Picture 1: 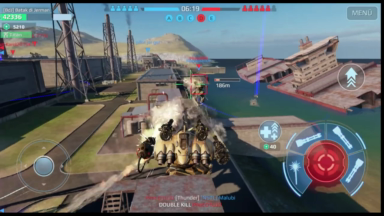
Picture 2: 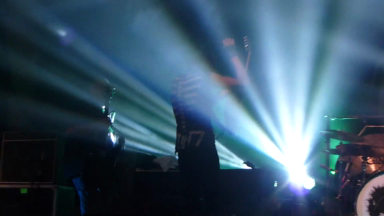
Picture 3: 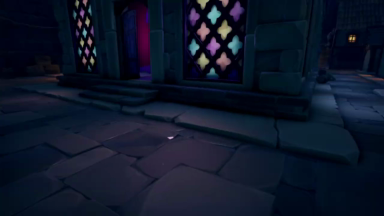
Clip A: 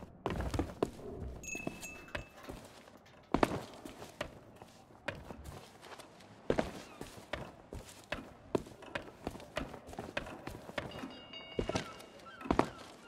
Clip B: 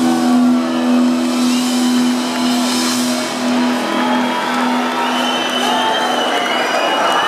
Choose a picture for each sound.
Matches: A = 3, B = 2